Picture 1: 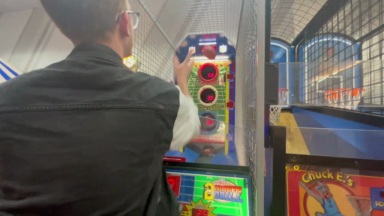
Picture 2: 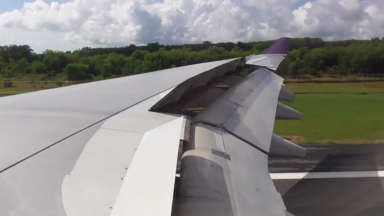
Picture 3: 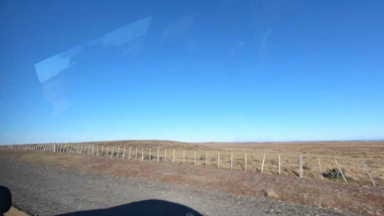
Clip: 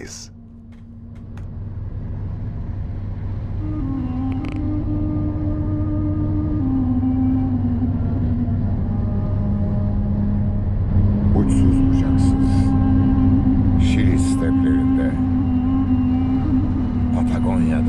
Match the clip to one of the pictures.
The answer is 3